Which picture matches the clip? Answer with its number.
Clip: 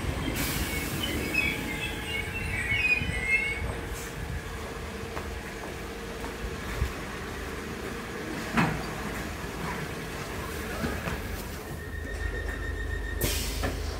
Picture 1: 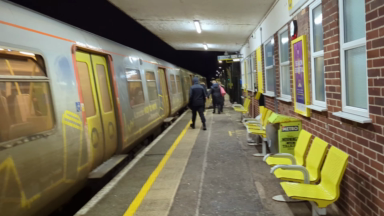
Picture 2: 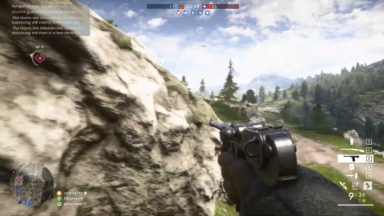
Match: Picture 1